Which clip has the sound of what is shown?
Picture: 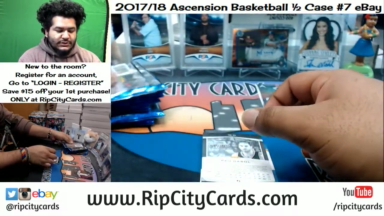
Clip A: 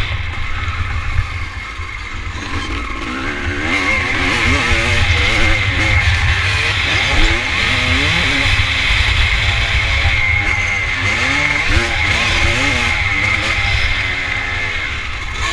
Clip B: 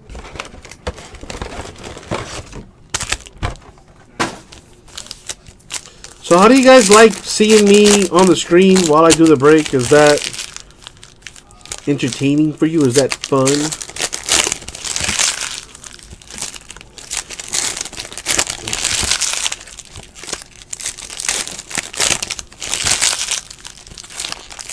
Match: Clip B